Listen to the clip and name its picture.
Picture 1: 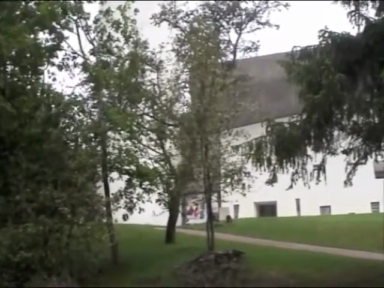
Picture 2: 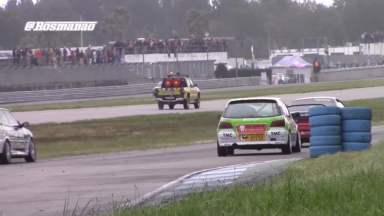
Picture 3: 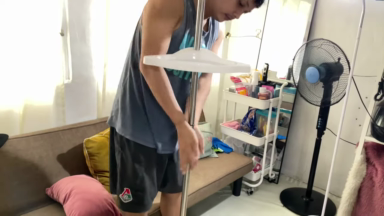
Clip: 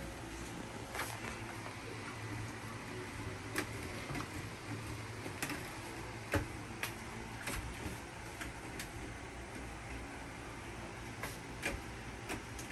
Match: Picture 3